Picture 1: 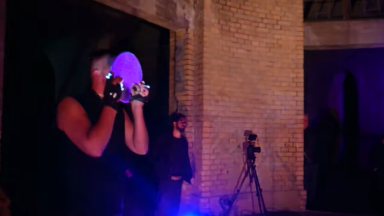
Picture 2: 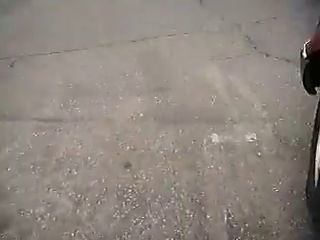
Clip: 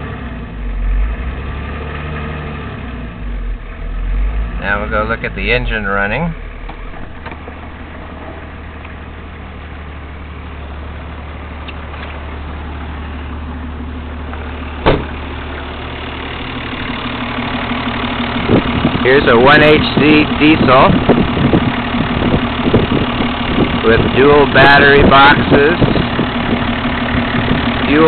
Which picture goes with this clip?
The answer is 2